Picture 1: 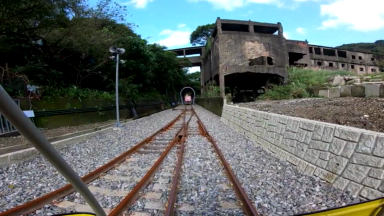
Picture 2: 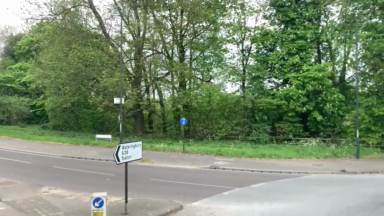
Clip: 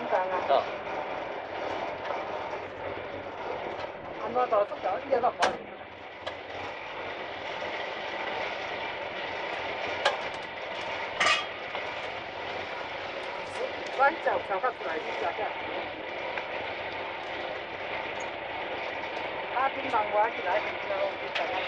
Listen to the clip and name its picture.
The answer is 1